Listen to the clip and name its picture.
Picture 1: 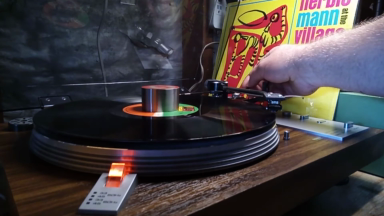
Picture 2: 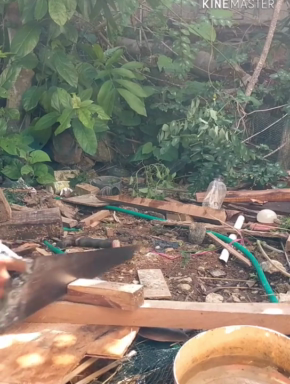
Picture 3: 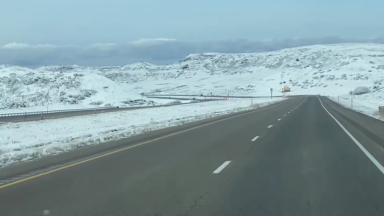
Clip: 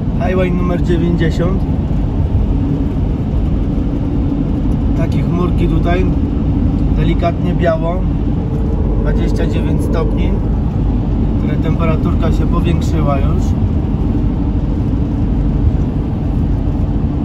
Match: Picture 3